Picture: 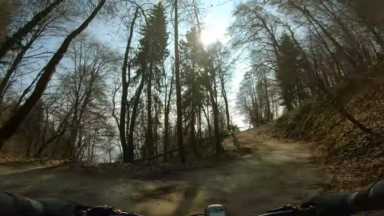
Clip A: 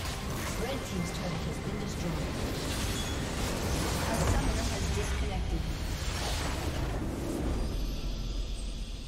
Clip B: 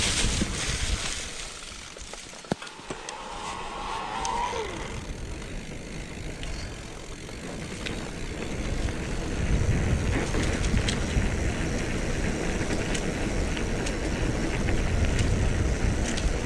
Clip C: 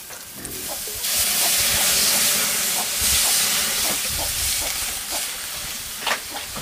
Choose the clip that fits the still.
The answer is B